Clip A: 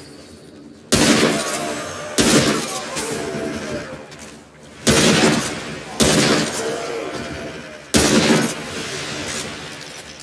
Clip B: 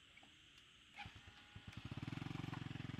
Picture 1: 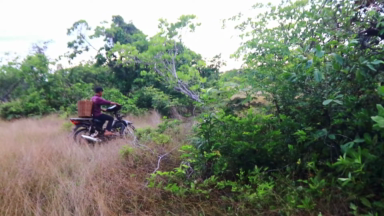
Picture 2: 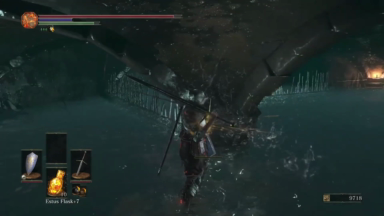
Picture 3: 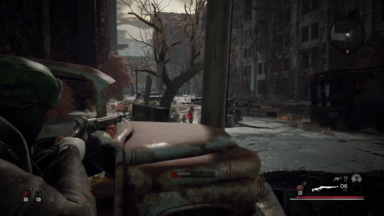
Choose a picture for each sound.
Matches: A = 3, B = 1